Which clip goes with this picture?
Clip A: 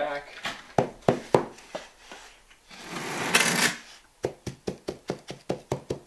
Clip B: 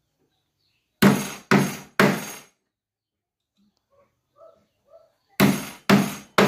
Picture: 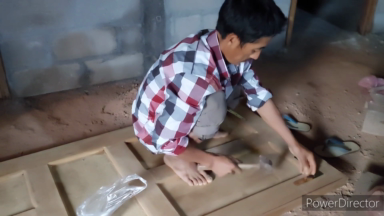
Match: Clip B